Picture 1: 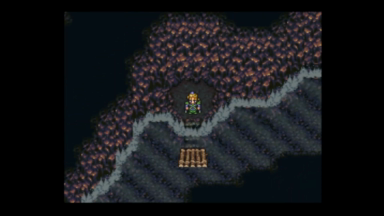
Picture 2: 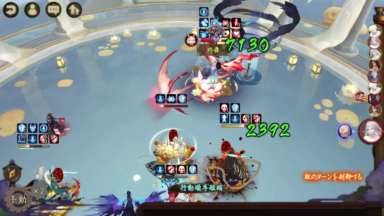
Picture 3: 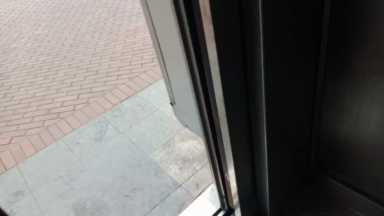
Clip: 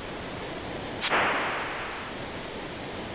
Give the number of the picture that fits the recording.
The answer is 1